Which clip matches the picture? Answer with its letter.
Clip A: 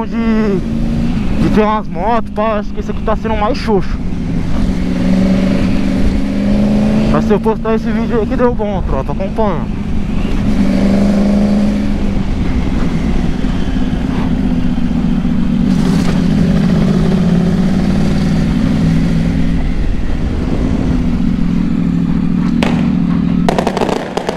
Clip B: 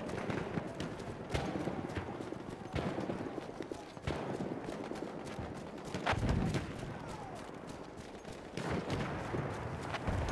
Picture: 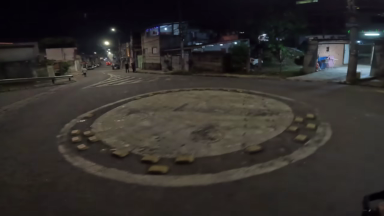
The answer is A